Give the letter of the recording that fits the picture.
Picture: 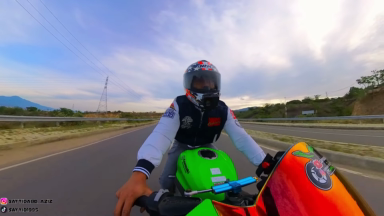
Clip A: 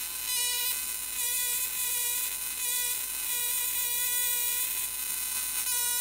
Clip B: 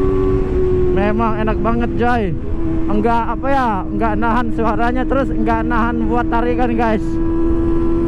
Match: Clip B